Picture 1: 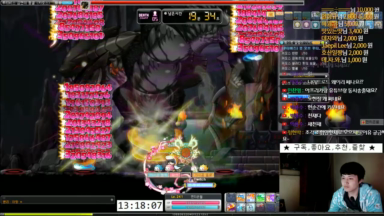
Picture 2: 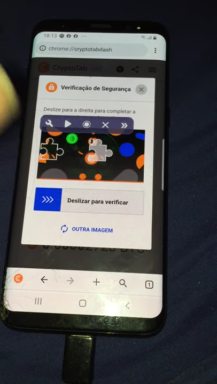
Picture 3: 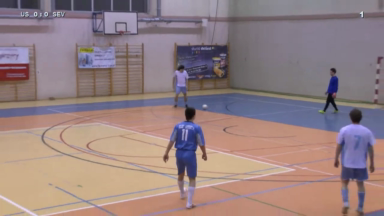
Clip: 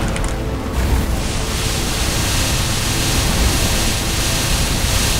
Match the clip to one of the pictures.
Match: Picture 1